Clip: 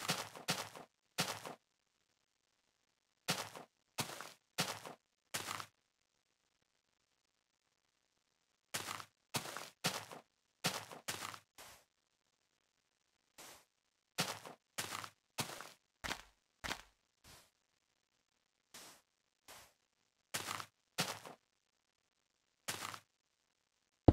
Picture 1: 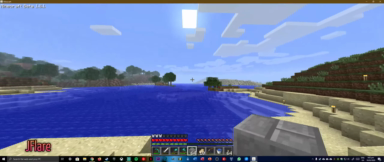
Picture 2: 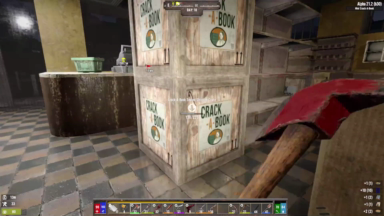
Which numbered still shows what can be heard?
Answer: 1